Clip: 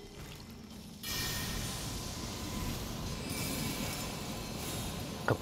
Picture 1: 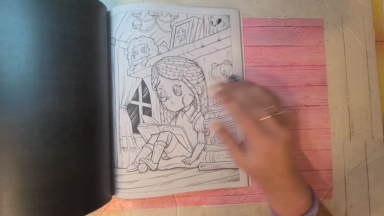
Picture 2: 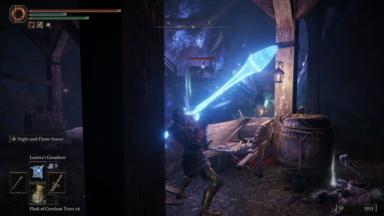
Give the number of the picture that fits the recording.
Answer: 2